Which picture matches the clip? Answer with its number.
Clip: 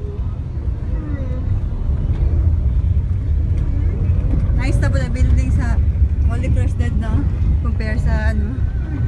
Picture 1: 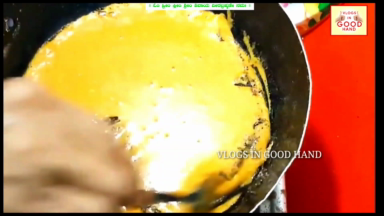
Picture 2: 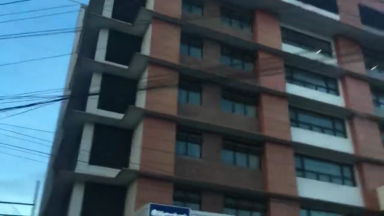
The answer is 2